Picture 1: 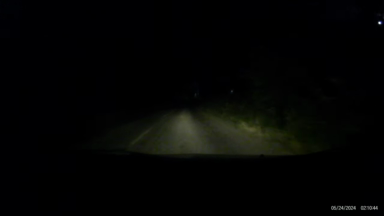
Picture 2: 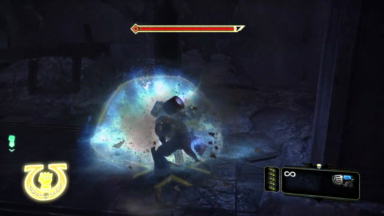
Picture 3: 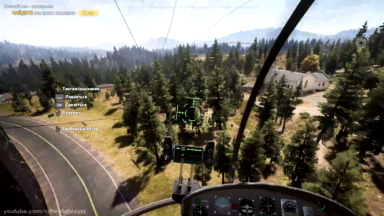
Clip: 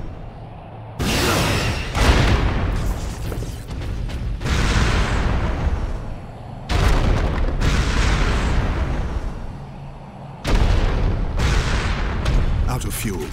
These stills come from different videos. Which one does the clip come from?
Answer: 2